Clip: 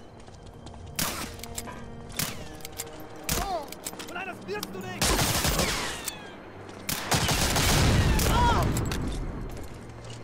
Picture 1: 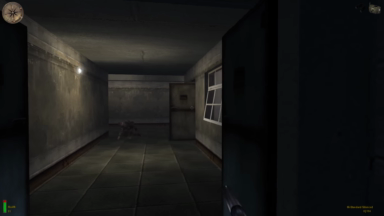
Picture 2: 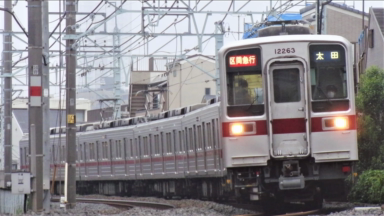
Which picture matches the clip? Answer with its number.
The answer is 1